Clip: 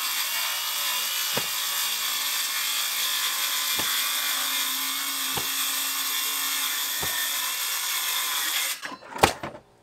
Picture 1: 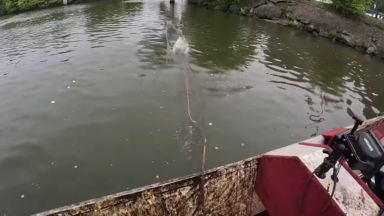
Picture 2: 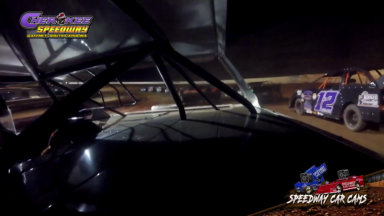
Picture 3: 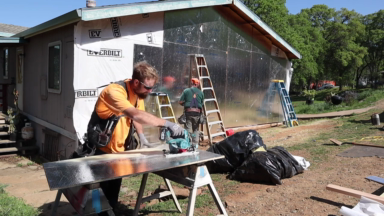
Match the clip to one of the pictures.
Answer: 3